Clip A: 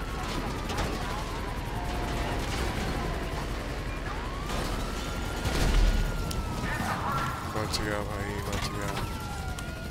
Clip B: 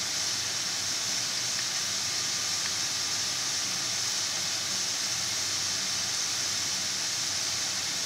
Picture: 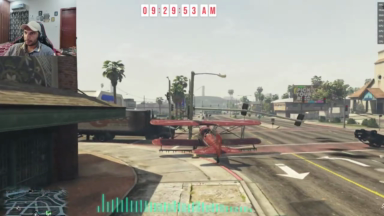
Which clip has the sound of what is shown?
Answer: A